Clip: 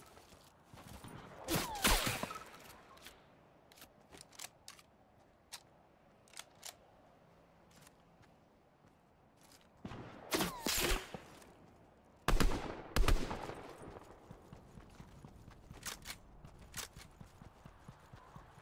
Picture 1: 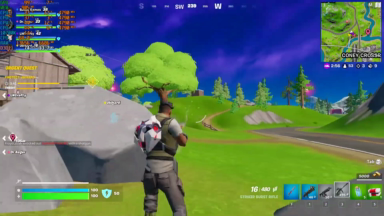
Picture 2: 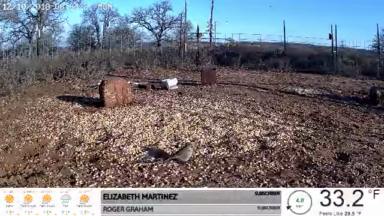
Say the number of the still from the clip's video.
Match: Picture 1